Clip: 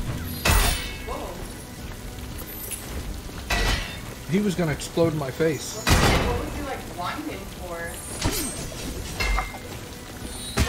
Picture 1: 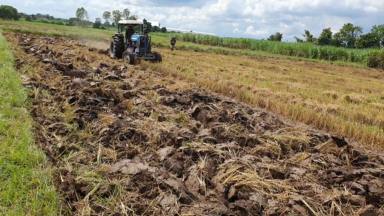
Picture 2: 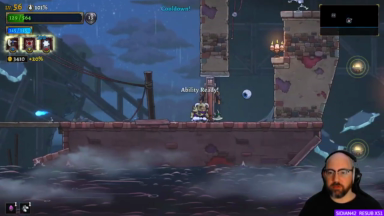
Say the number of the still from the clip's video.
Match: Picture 2